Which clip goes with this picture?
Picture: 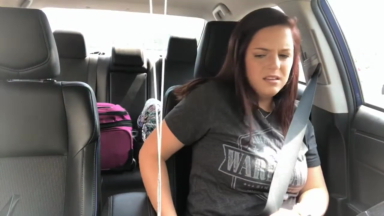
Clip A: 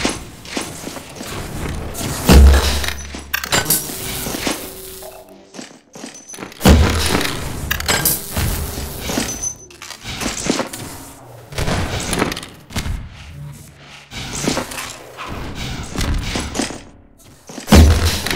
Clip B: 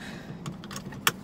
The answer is B